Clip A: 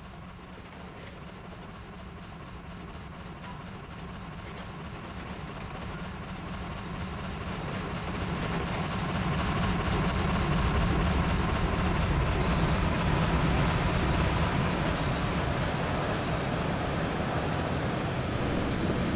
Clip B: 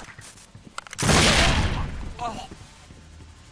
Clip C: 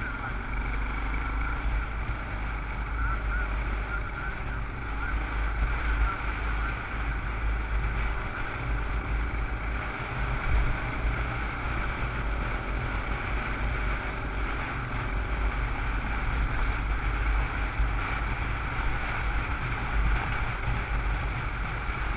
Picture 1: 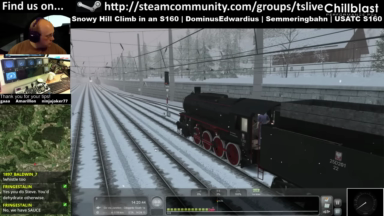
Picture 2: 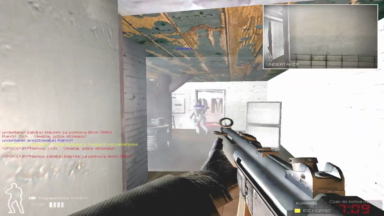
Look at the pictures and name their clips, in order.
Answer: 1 A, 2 B